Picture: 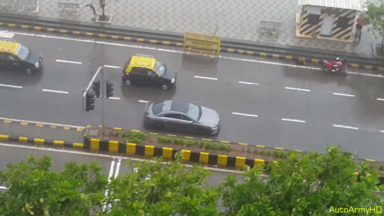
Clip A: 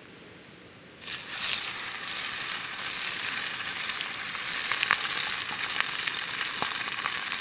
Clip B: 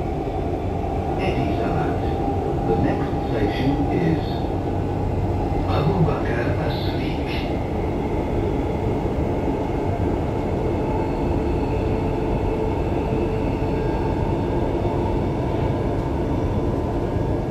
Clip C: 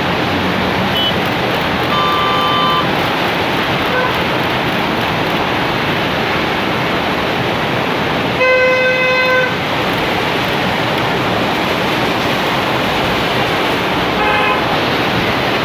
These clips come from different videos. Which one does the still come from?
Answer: C